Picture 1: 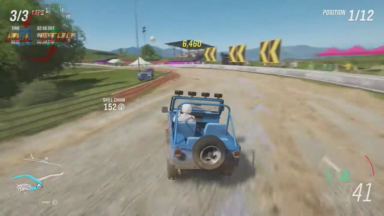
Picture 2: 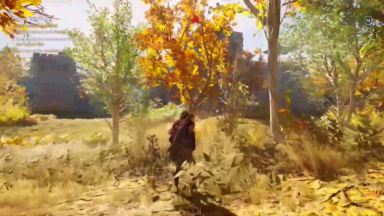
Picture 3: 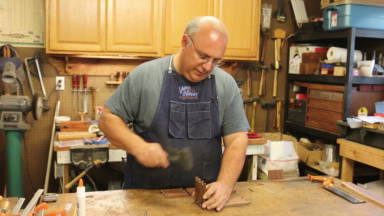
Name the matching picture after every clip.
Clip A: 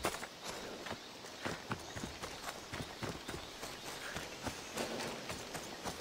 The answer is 2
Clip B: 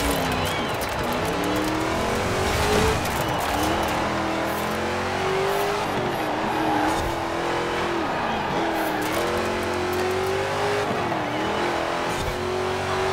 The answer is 1